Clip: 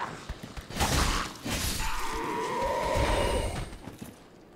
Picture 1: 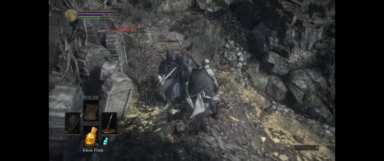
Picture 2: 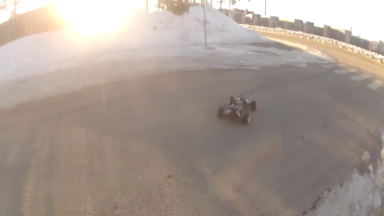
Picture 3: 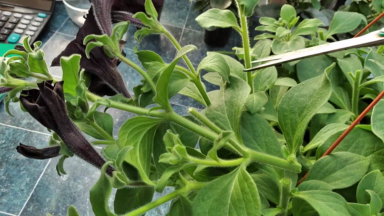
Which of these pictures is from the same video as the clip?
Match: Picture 1